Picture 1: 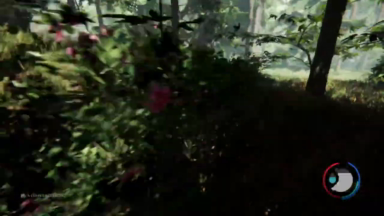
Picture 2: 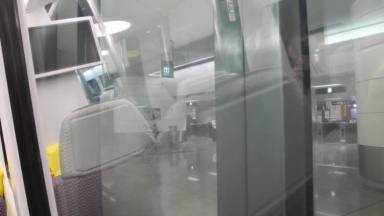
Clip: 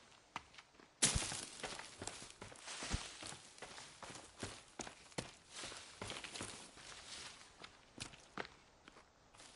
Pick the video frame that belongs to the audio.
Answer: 1